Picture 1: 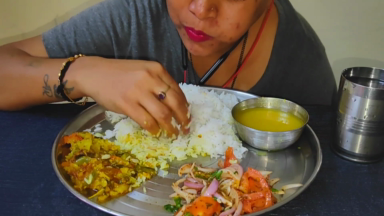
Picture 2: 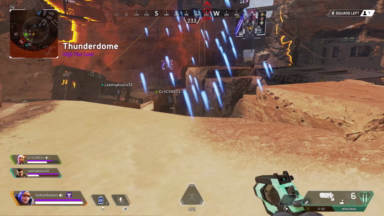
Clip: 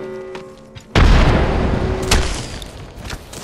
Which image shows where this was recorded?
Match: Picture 2